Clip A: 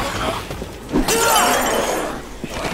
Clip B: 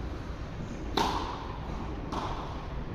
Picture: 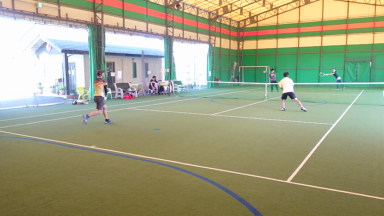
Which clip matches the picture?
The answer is B